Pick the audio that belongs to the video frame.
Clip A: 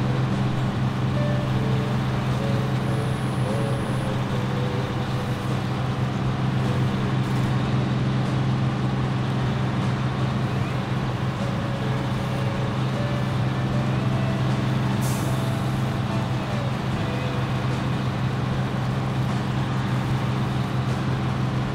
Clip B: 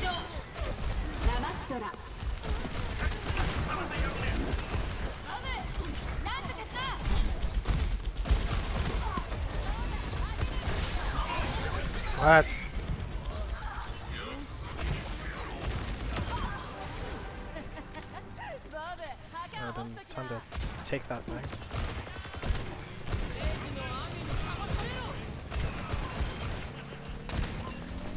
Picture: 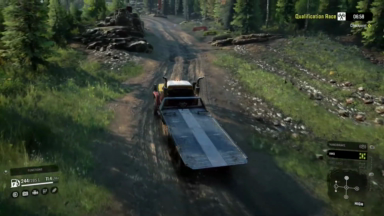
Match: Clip A